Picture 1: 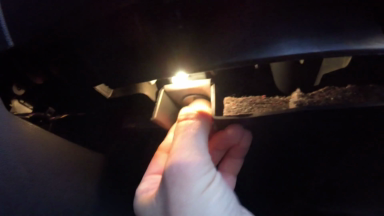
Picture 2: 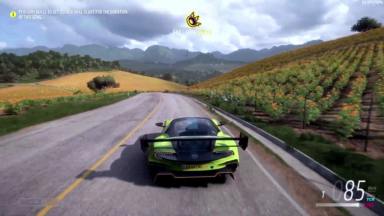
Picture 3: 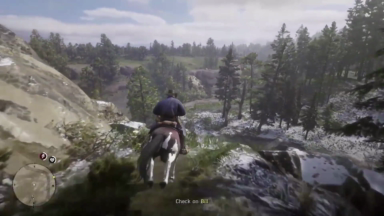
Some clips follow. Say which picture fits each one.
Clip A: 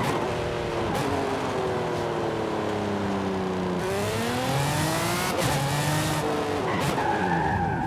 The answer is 2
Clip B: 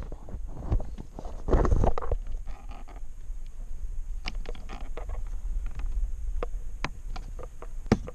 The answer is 1